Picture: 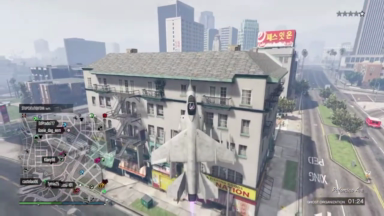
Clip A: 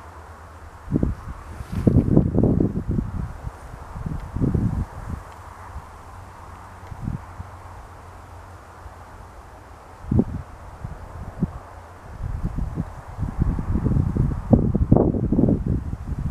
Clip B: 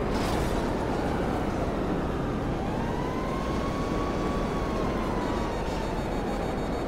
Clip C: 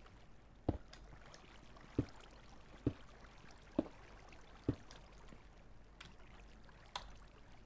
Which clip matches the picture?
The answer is B